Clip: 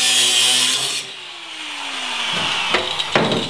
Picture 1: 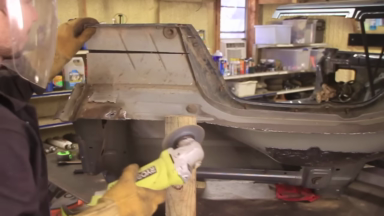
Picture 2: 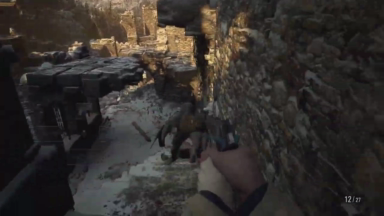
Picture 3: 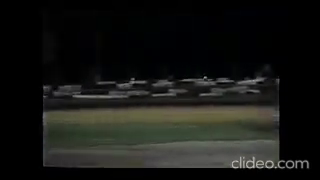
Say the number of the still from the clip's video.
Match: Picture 1